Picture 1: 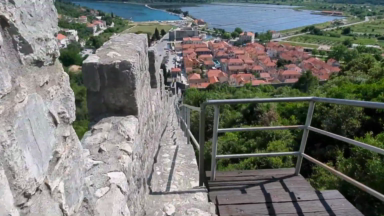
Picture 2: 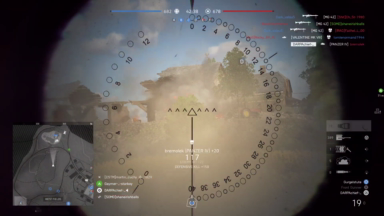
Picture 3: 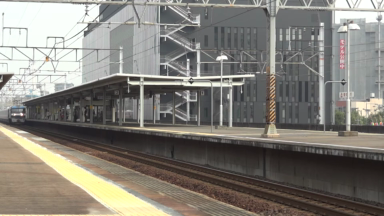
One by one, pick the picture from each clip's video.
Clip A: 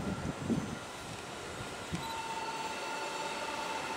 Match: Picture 3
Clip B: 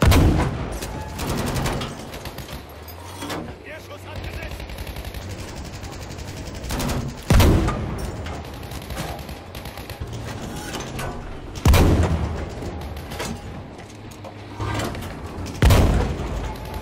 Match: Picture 2